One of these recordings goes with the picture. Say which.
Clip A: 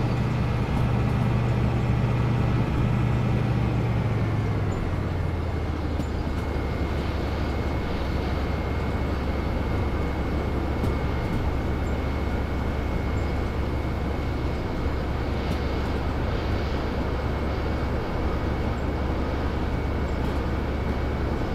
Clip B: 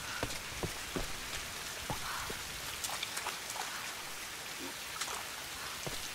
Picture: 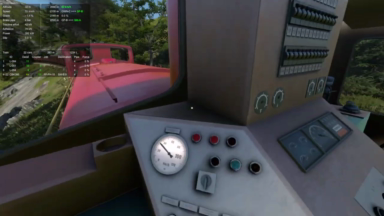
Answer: A